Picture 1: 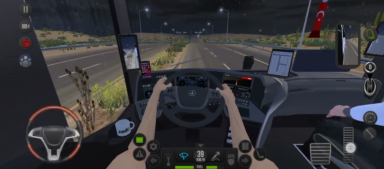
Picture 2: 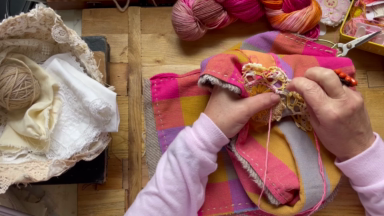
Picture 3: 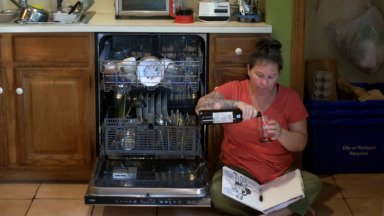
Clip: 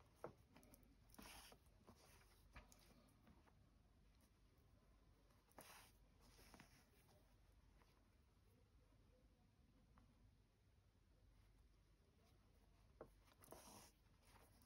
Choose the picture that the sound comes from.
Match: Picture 2